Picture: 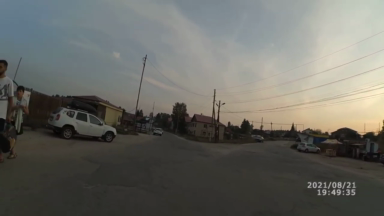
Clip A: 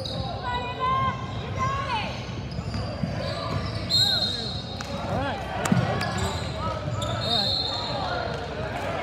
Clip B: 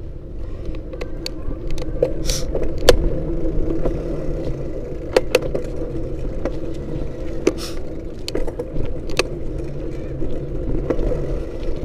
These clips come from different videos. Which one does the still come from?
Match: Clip B